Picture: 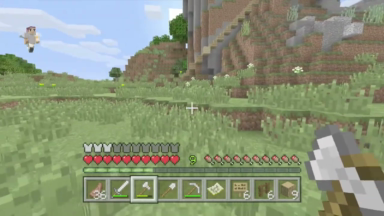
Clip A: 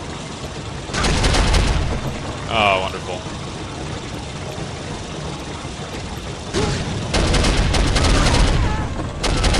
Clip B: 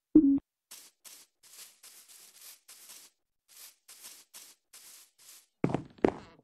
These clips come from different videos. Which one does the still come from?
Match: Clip B